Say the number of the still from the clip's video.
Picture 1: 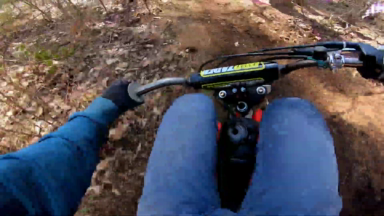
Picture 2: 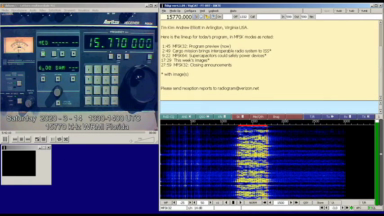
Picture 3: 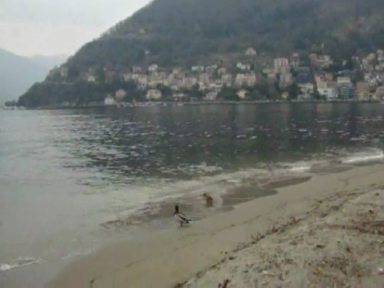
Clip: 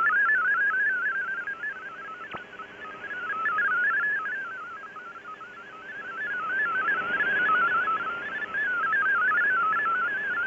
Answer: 2